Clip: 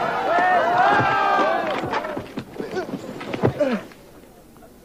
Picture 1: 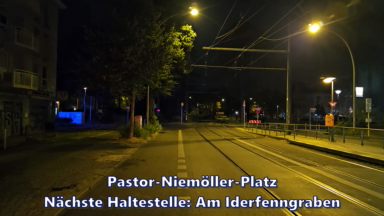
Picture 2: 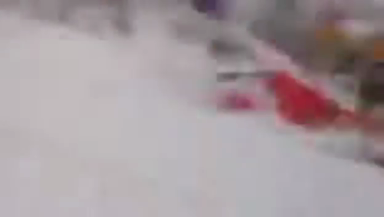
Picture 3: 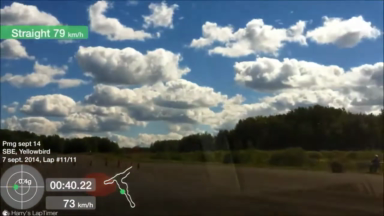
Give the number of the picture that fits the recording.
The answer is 2